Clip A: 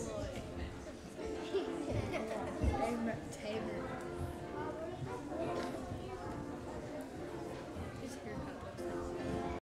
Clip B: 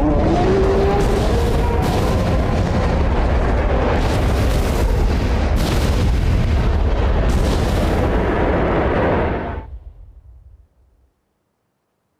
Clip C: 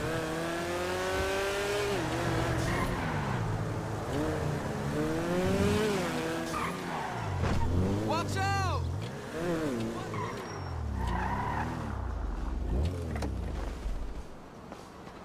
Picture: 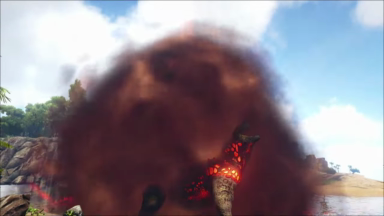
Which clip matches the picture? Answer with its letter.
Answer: B